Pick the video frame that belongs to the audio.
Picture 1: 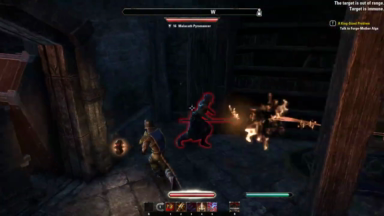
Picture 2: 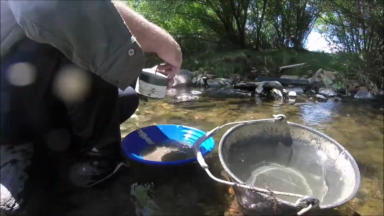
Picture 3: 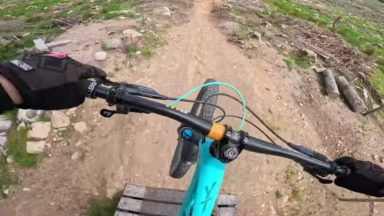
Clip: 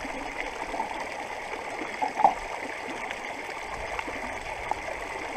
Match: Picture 2